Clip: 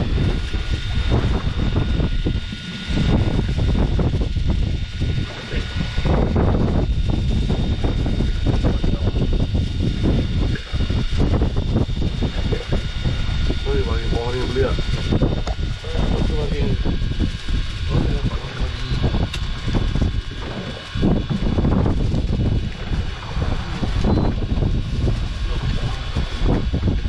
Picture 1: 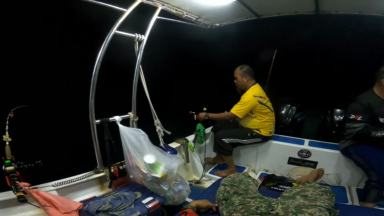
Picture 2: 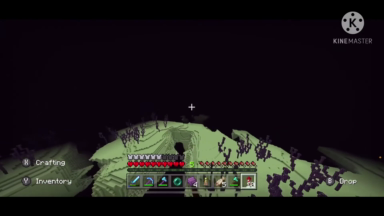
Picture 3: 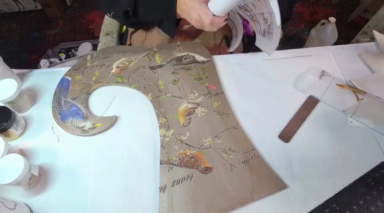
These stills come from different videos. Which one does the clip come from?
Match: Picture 1